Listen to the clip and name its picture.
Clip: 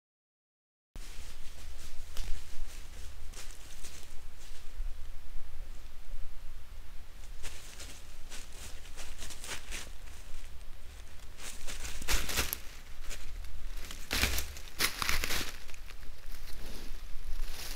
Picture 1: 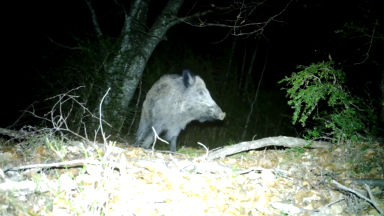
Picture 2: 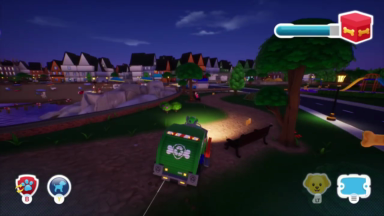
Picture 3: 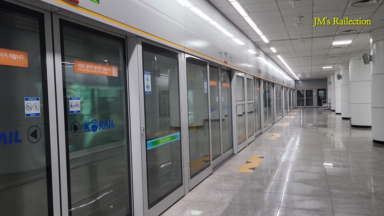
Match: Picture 1